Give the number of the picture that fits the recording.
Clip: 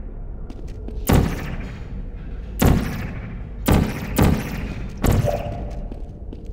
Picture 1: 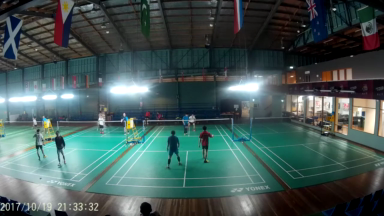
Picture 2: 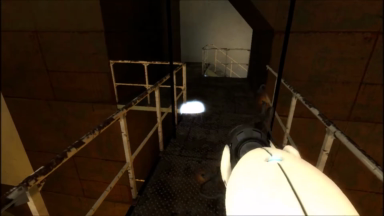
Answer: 2